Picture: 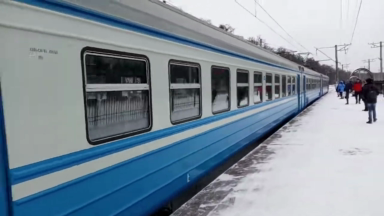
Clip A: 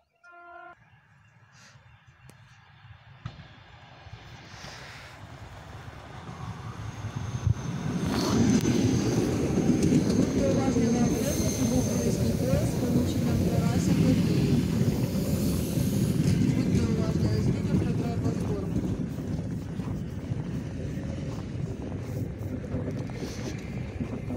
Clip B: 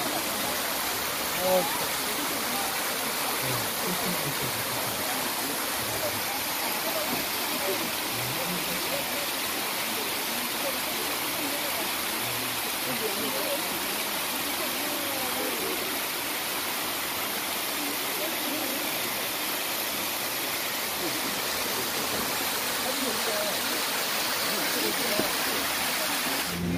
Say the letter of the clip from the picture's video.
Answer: A